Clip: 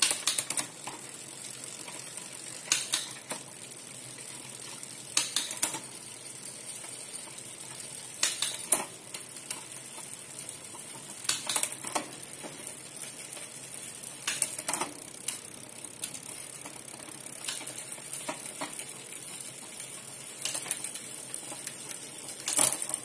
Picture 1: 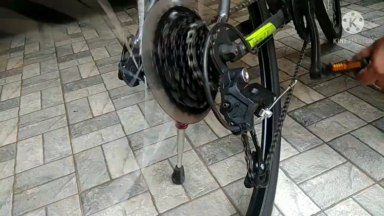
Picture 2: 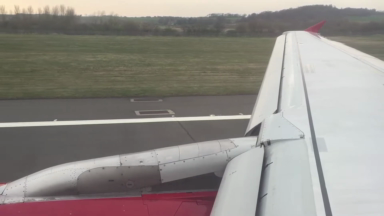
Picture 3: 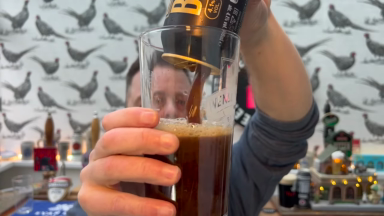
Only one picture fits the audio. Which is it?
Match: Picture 1